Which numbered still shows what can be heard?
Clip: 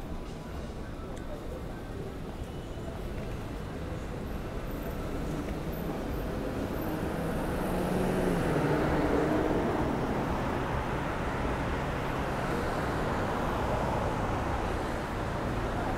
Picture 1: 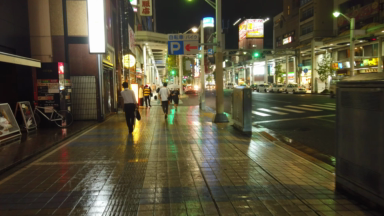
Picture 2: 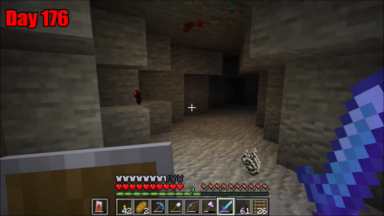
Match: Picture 1